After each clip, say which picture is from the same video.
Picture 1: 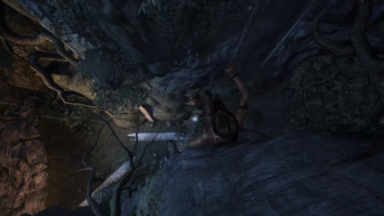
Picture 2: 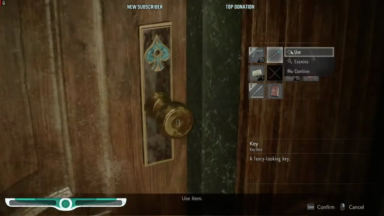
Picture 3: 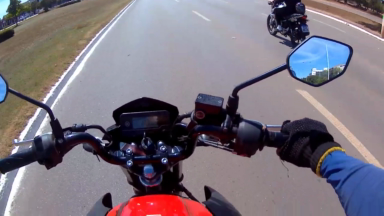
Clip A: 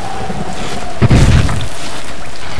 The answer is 1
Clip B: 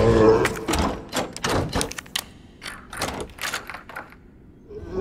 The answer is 2